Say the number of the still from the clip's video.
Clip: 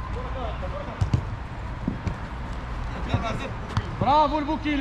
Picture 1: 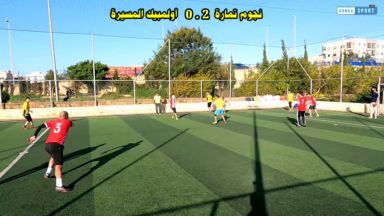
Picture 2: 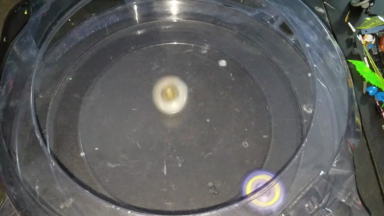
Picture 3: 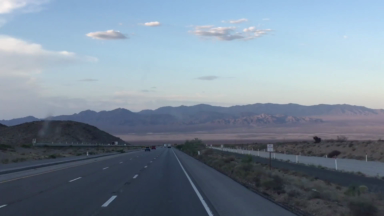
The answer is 1